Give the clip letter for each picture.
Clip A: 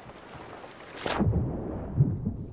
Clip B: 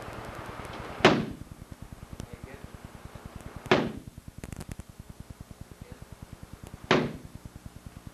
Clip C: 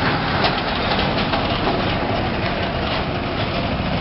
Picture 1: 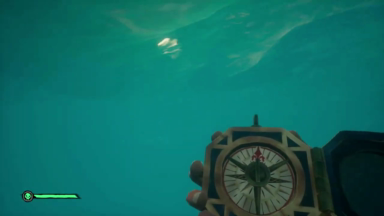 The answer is A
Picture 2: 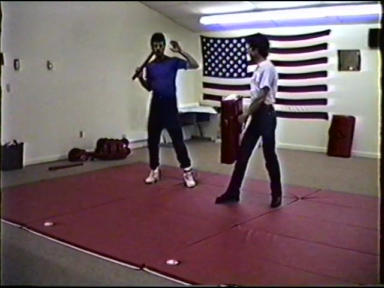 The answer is B